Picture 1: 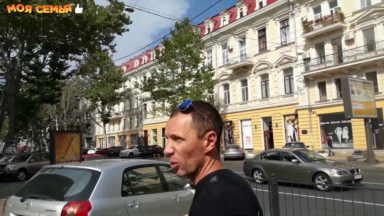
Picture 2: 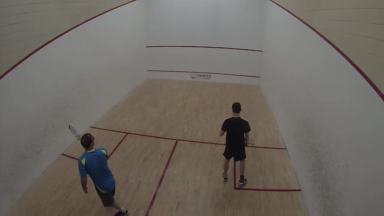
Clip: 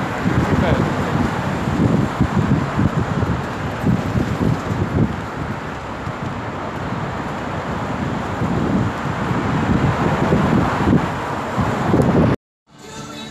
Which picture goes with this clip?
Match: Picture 1